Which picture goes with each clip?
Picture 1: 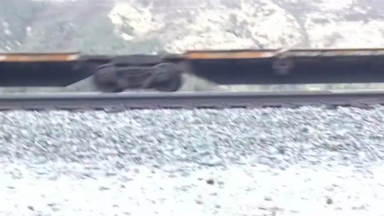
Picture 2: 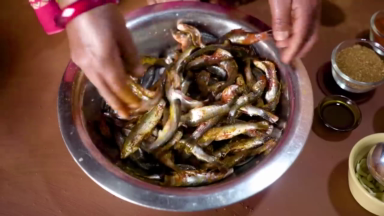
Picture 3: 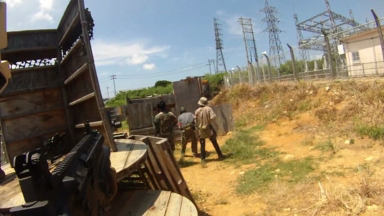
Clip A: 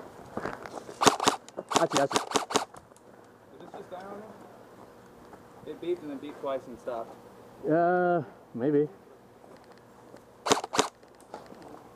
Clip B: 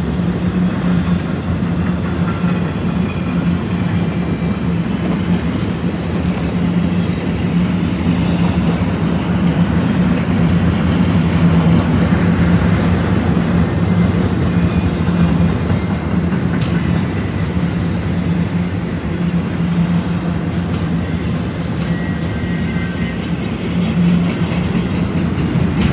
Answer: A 3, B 1